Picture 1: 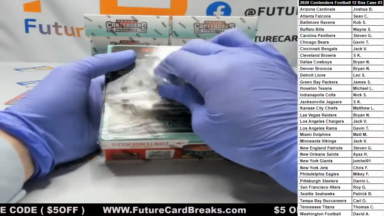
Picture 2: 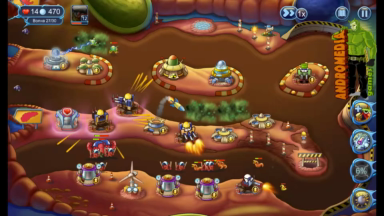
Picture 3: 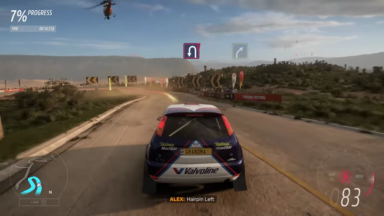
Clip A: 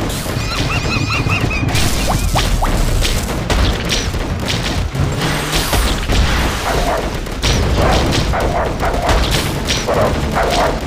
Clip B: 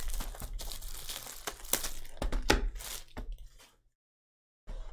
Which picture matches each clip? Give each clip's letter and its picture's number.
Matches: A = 2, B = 1